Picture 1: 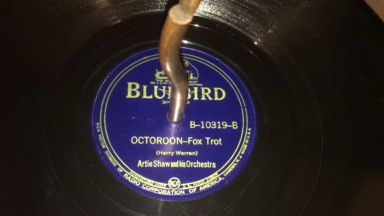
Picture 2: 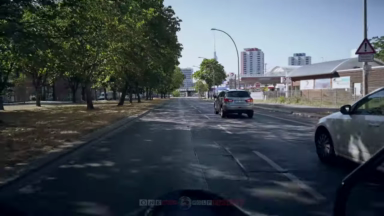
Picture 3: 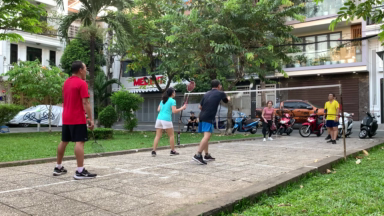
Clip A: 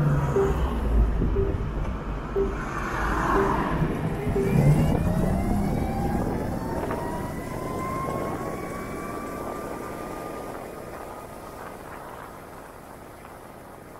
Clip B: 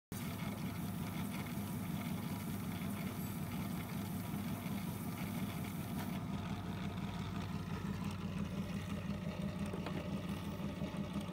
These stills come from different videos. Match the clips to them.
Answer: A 2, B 1